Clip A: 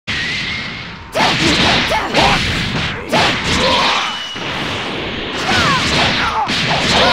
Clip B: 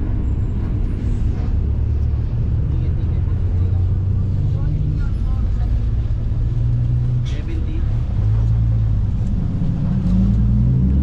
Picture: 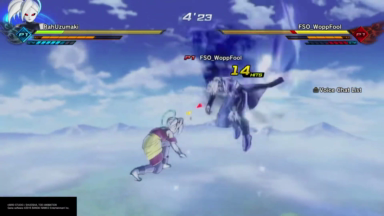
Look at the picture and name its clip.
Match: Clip A